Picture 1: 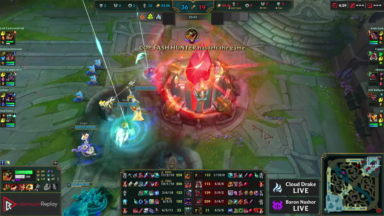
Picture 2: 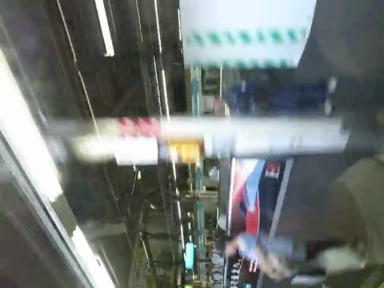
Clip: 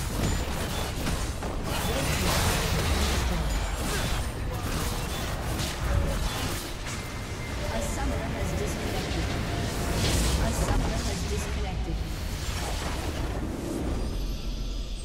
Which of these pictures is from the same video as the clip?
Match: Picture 1